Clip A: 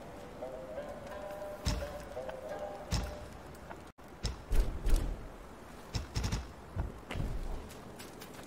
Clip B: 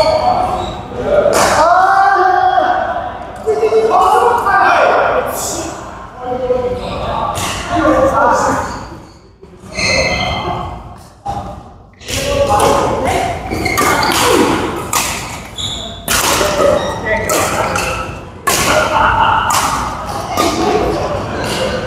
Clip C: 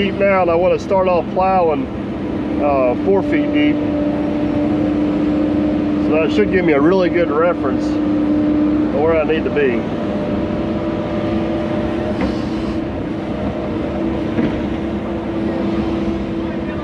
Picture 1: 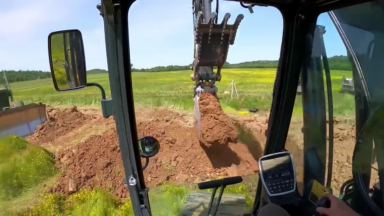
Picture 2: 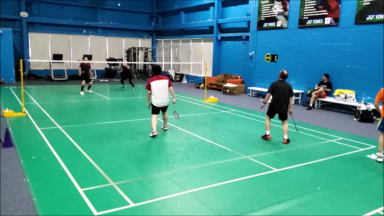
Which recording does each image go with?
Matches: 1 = C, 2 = B